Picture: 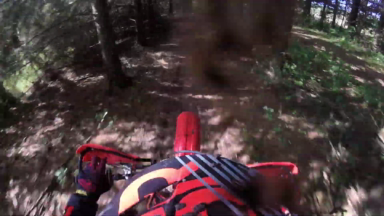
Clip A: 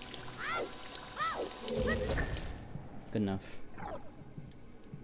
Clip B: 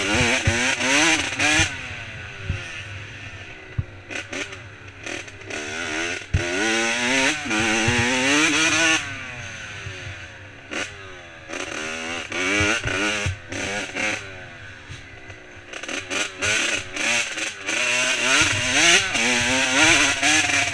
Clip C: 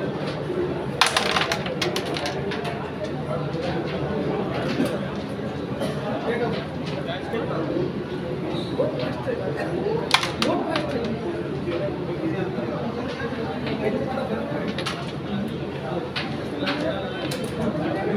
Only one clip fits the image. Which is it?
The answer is B